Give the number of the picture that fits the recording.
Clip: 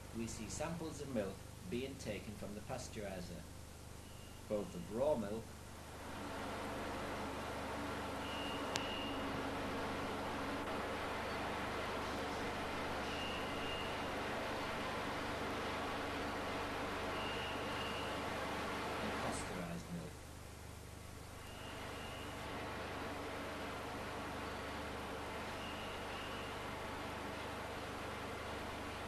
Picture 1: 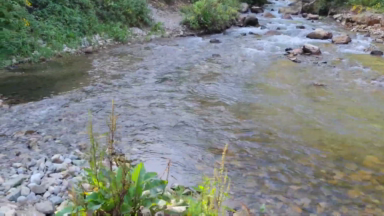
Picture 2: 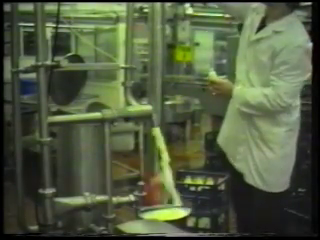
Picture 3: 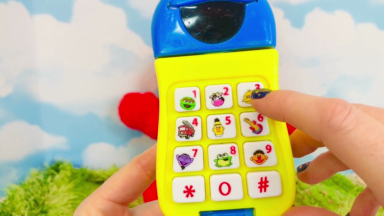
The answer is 2